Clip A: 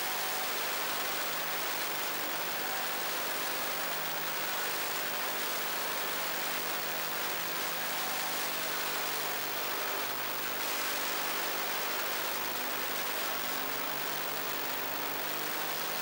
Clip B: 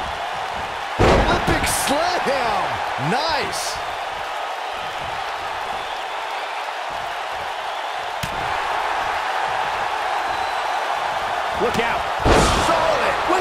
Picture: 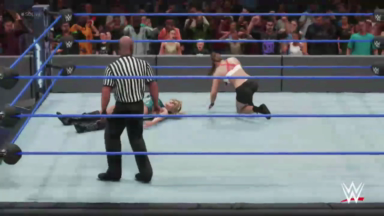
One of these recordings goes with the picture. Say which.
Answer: B